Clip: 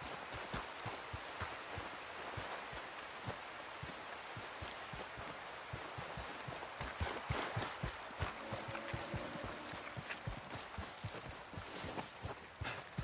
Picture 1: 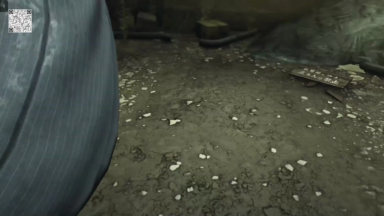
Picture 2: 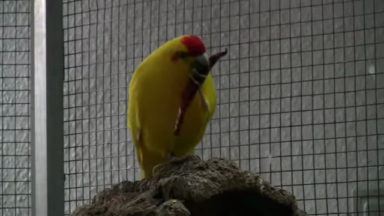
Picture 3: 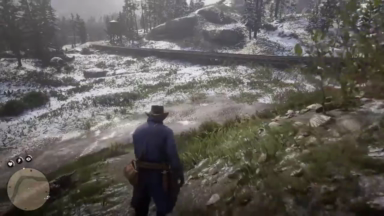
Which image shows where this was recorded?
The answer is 3